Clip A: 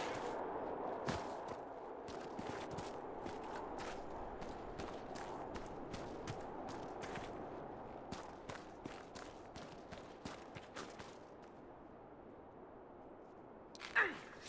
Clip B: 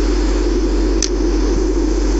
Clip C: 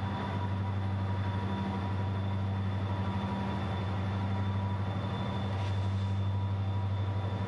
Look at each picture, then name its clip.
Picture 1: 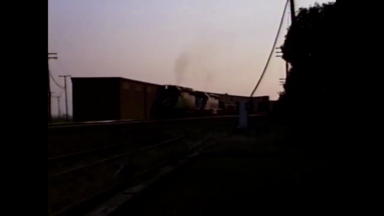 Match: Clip C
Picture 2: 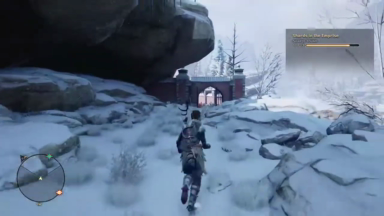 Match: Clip A